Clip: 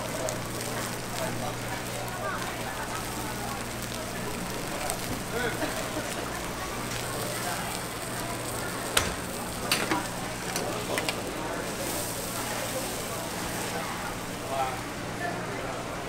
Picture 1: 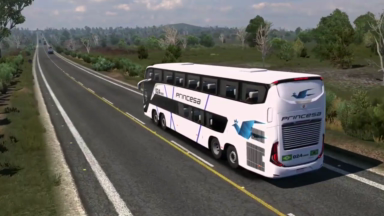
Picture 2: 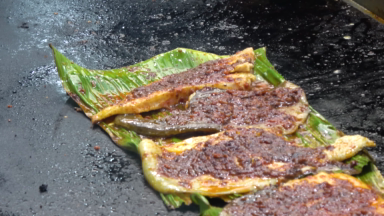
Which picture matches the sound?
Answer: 2